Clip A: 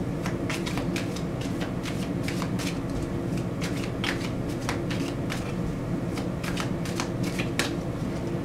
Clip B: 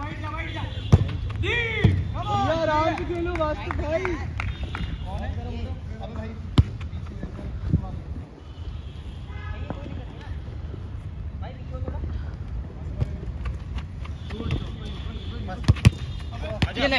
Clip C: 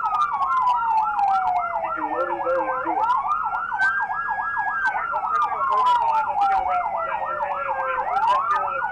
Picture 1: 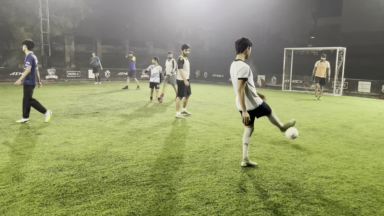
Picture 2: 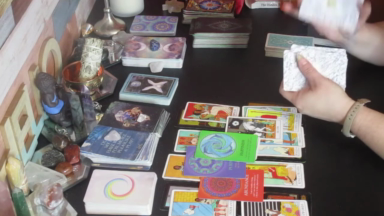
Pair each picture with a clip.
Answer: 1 B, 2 A